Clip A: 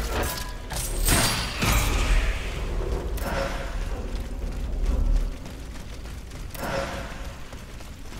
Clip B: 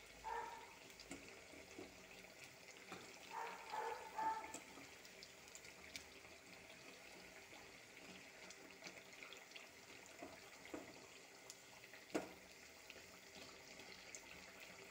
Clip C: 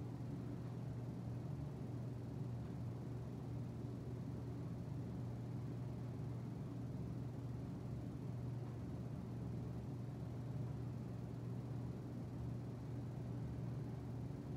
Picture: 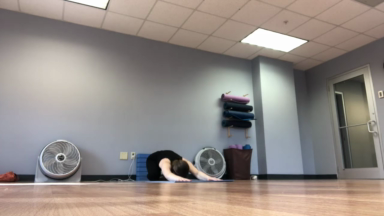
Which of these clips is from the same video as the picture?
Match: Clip C